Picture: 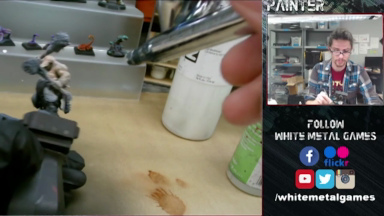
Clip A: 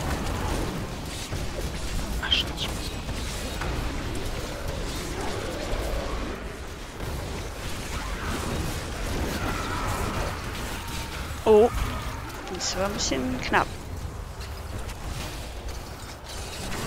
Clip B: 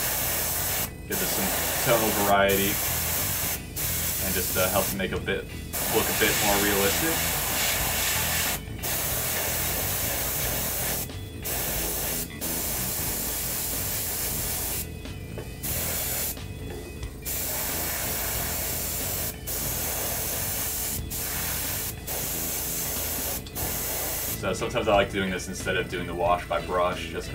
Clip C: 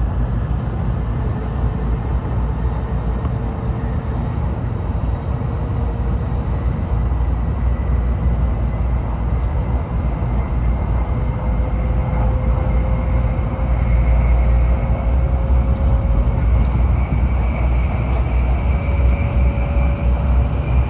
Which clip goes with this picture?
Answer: B